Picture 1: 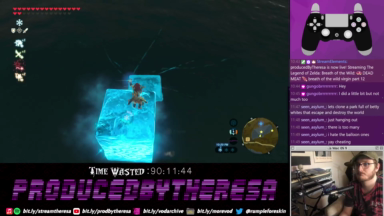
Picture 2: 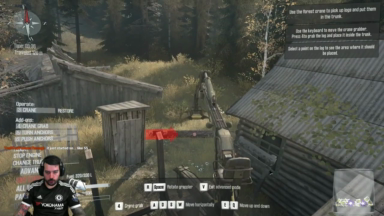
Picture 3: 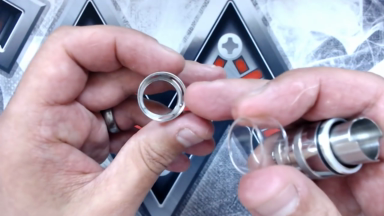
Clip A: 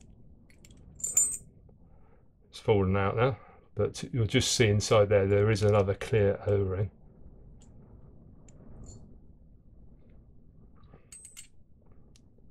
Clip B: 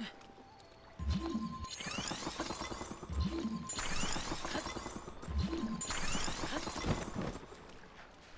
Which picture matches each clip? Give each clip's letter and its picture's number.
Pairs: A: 3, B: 1